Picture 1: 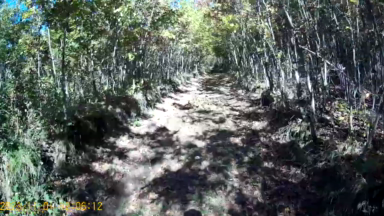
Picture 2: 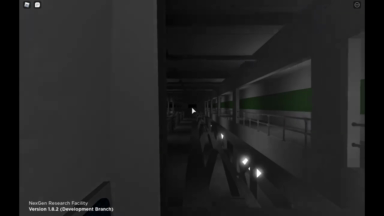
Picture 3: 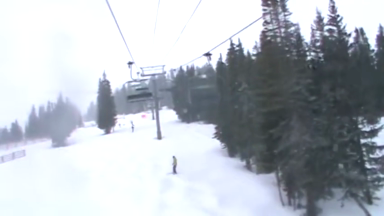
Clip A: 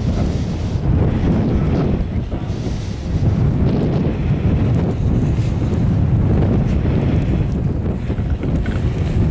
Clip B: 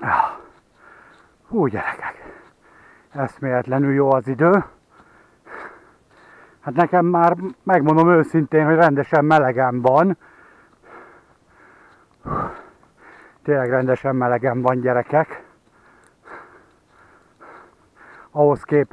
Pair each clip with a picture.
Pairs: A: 3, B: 1